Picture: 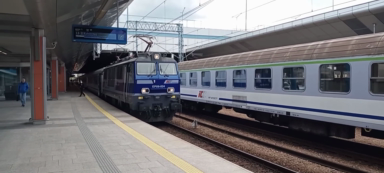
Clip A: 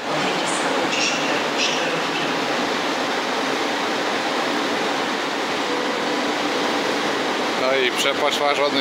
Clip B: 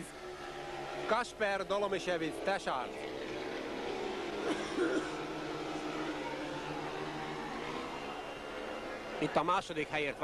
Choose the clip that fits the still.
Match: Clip A